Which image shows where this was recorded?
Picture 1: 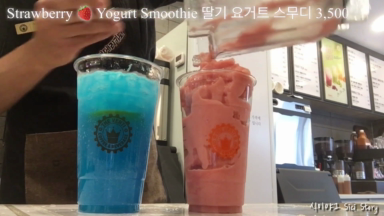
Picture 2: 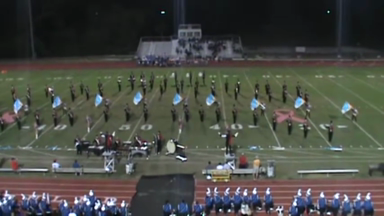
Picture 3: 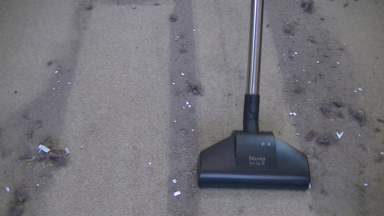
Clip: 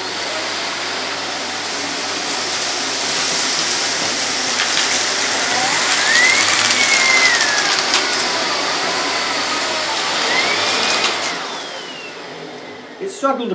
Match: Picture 3